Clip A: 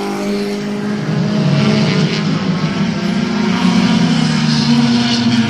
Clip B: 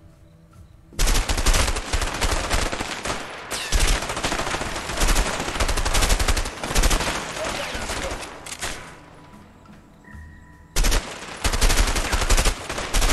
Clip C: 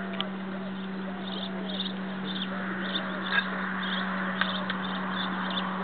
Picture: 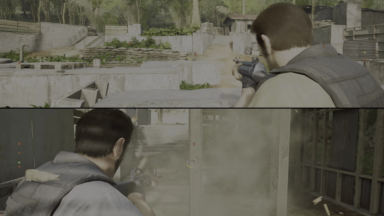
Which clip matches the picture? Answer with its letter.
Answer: B